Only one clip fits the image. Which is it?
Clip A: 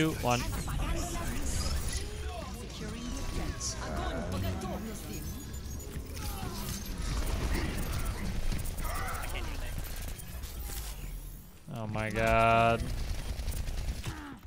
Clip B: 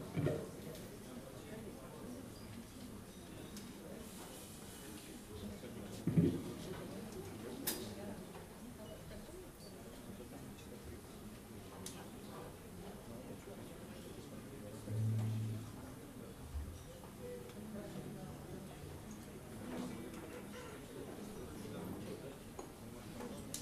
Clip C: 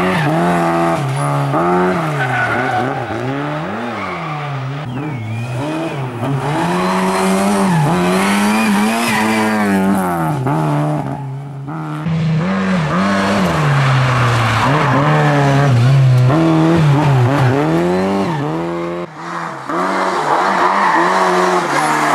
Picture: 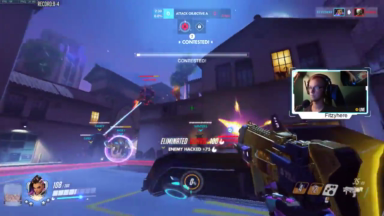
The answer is A